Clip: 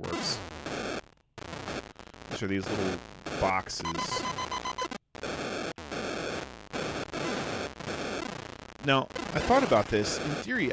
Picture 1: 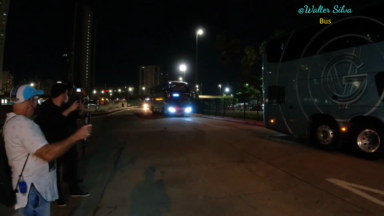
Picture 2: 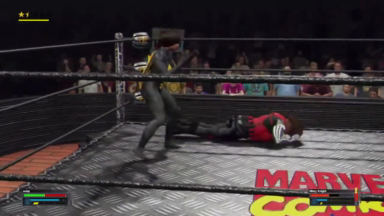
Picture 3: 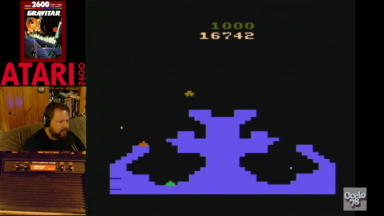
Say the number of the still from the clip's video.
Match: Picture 3